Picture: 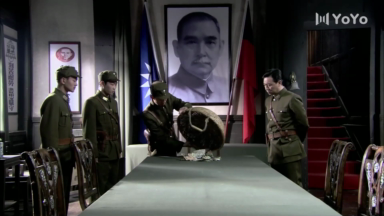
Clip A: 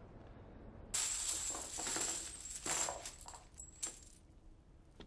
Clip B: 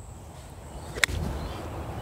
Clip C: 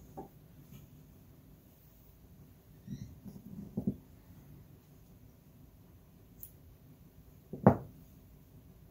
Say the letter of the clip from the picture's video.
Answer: A